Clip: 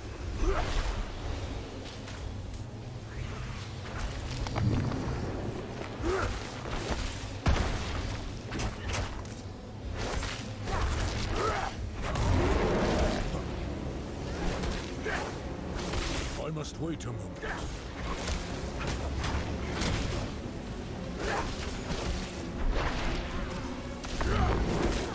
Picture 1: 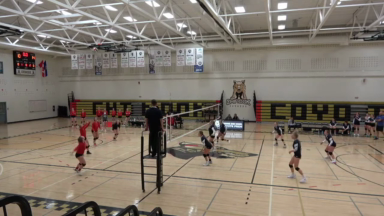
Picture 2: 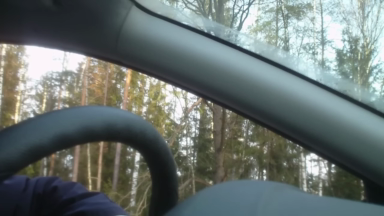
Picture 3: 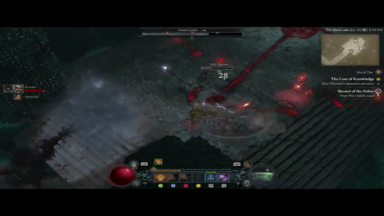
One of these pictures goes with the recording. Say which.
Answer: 3